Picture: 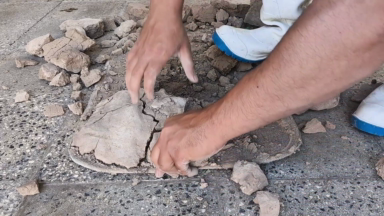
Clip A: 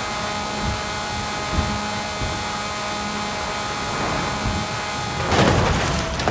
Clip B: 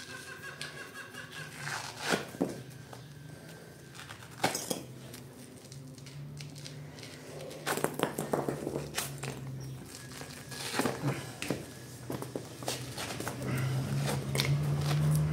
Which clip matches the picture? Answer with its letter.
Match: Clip B